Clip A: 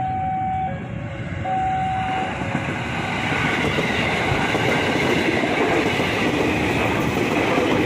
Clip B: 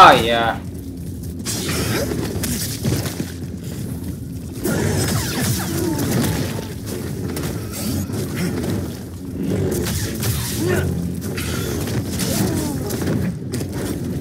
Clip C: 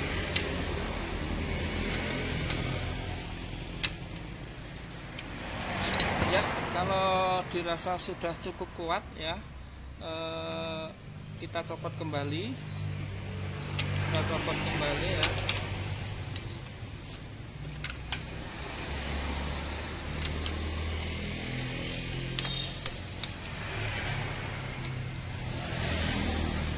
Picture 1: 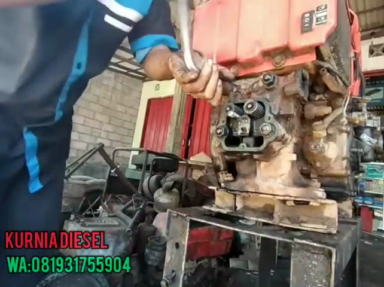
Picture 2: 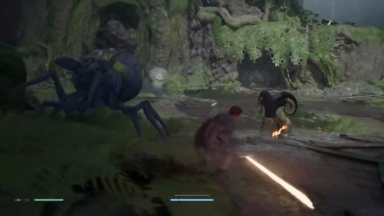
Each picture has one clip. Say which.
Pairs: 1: C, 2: B